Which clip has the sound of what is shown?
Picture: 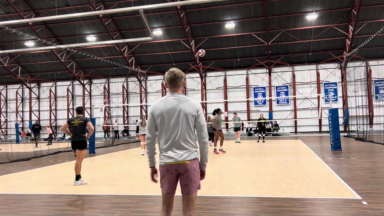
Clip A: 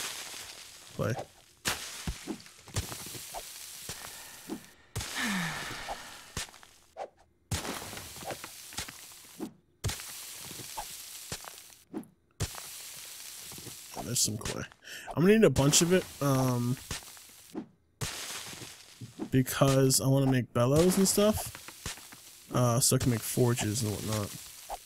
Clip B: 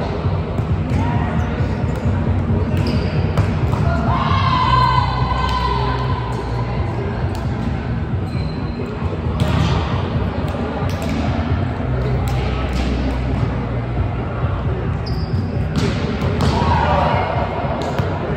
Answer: B